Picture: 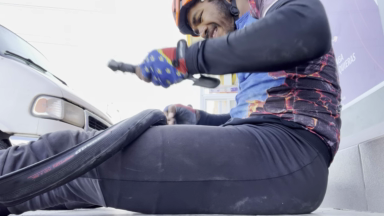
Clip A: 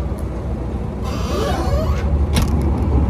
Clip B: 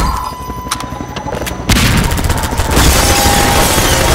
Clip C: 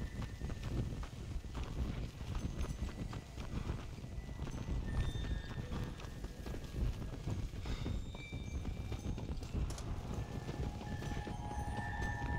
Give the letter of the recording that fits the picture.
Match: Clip A